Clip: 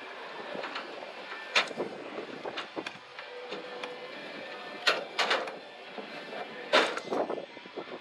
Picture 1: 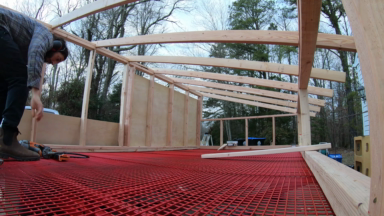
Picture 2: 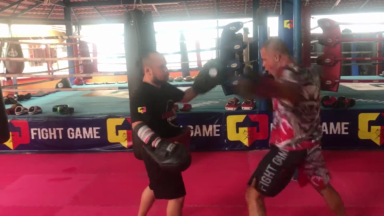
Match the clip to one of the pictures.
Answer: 1